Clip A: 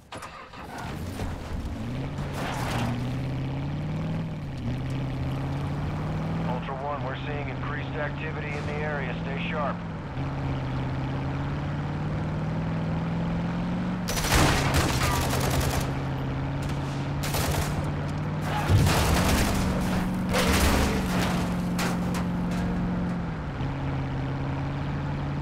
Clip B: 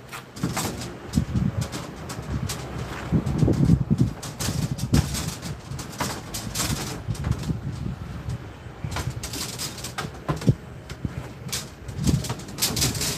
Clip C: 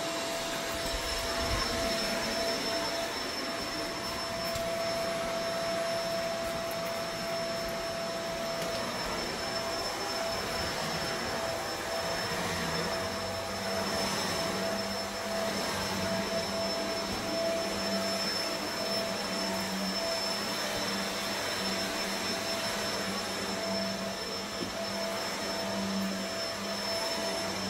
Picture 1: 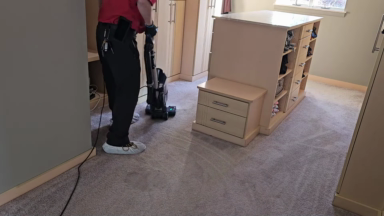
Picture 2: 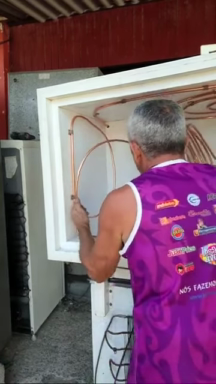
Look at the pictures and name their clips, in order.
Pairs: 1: C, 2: B